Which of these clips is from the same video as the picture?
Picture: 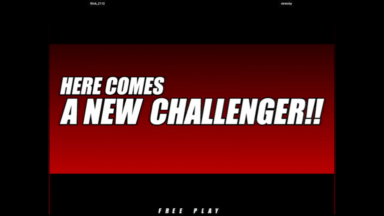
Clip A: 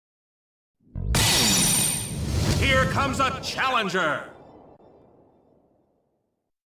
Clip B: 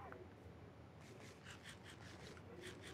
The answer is A